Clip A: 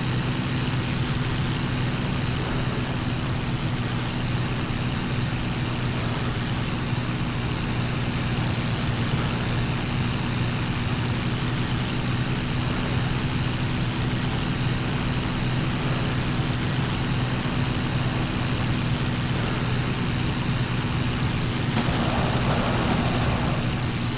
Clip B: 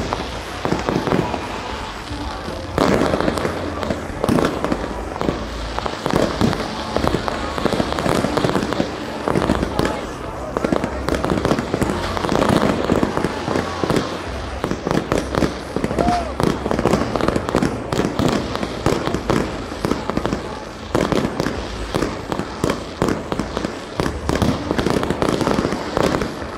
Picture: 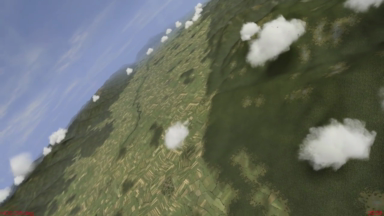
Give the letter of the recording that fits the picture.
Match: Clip A